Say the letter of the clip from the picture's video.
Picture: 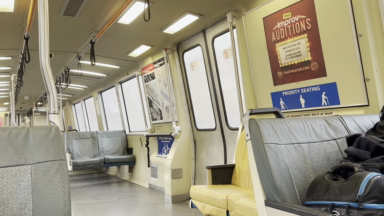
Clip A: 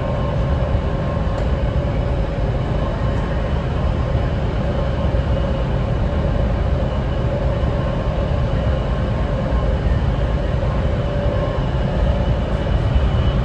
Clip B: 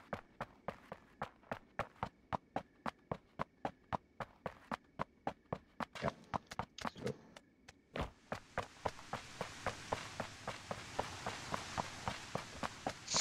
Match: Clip A